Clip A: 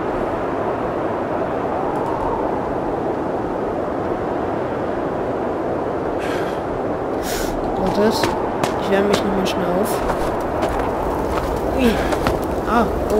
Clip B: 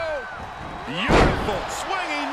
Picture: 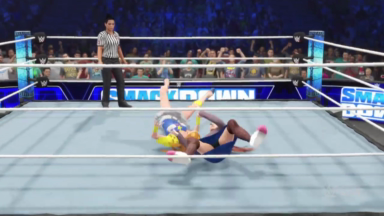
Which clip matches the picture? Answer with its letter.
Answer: B